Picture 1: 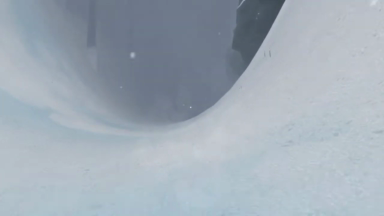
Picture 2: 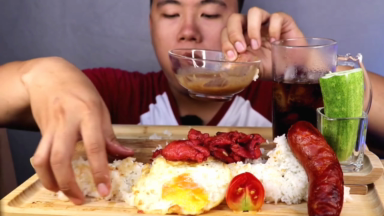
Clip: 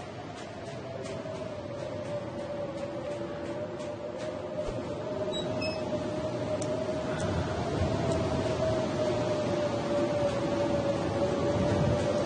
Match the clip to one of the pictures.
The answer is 1